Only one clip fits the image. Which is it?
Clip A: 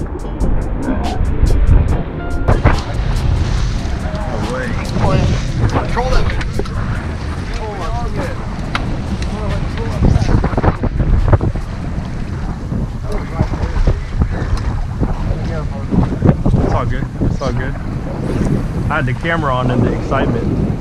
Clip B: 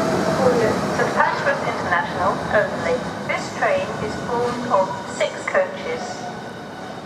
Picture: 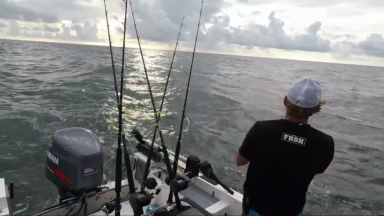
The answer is A